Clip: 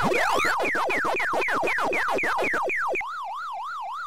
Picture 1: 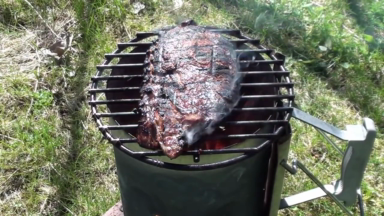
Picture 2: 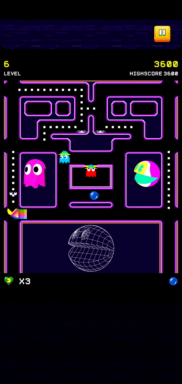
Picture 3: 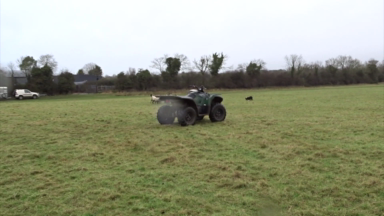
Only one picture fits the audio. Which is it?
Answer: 2